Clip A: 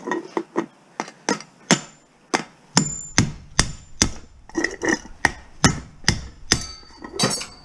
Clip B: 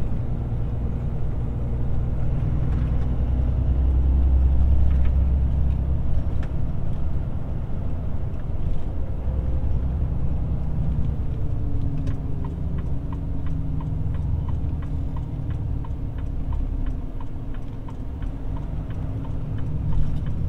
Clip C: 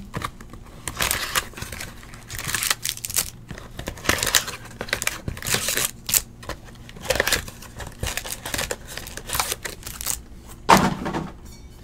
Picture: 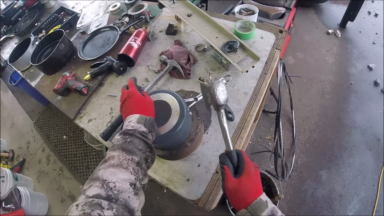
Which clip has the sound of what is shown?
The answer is A